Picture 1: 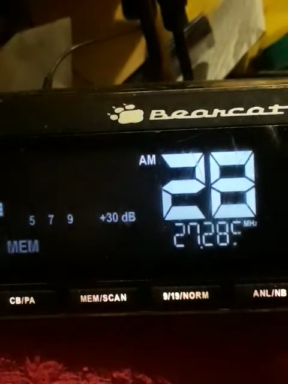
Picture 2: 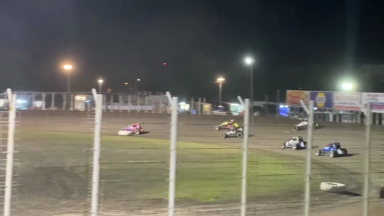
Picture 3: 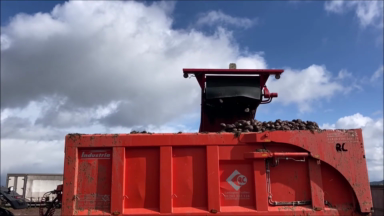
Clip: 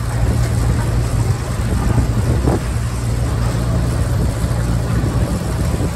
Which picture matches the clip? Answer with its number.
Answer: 3